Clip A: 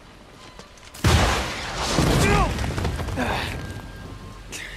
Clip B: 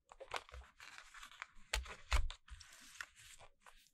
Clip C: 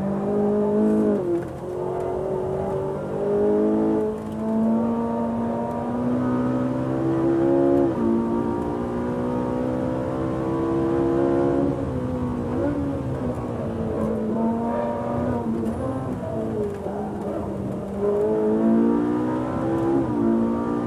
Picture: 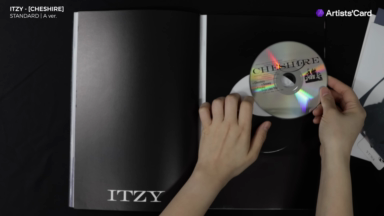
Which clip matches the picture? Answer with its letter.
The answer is B